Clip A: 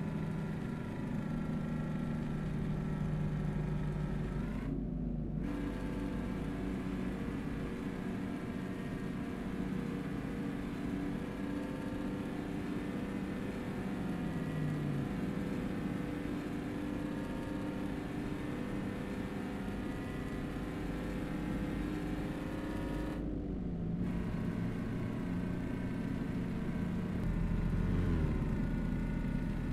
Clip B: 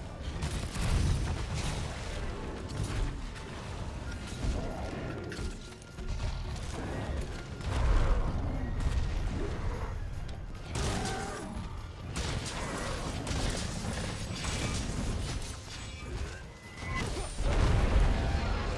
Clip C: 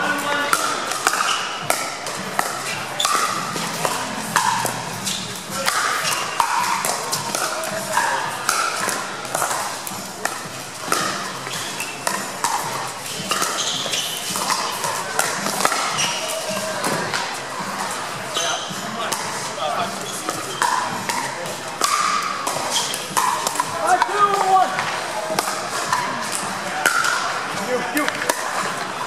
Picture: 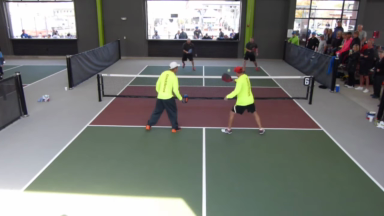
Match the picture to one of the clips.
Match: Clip C